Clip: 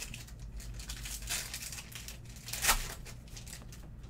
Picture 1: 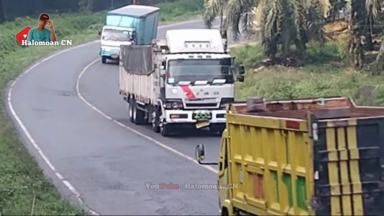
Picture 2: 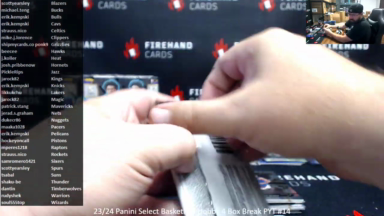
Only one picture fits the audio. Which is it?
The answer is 2